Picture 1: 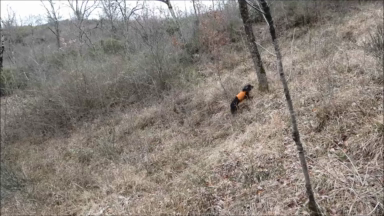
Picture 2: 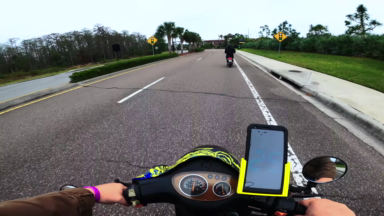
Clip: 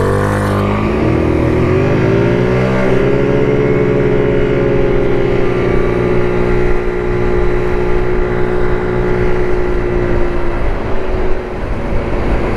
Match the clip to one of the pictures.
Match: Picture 2